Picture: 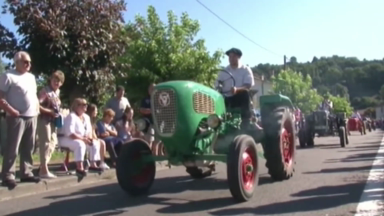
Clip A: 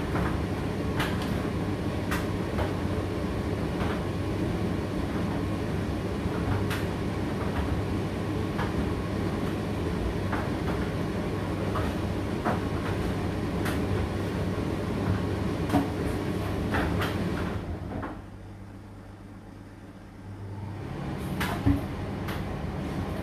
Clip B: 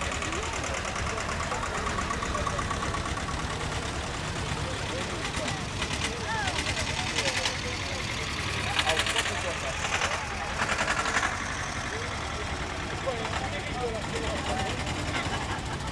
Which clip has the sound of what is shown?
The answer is B